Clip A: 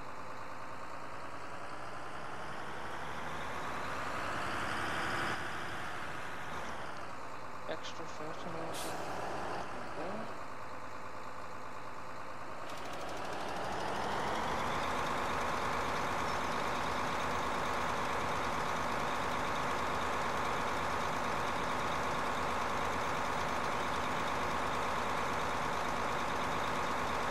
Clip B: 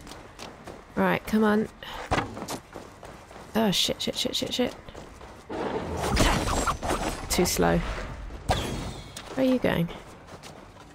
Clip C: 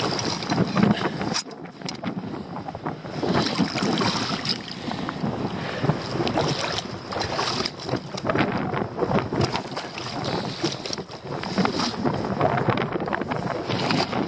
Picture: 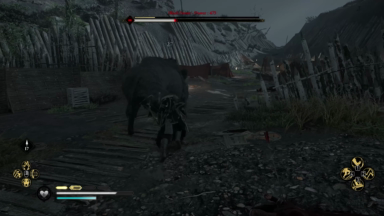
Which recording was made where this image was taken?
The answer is B